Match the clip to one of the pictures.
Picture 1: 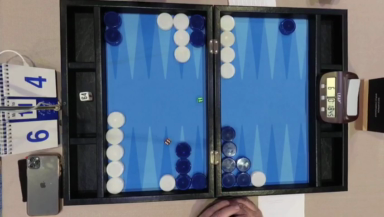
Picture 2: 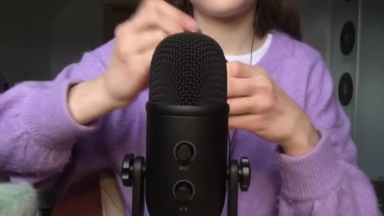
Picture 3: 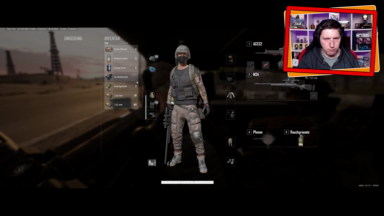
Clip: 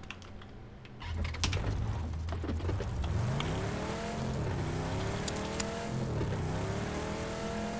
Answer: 3